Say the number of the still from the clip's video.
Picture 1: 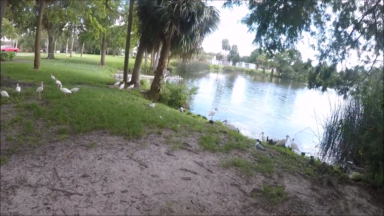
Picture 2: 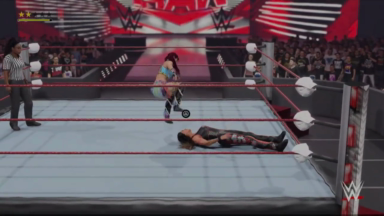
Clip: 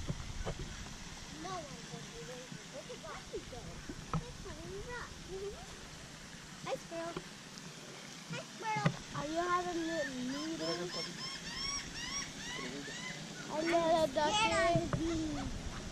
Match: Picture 1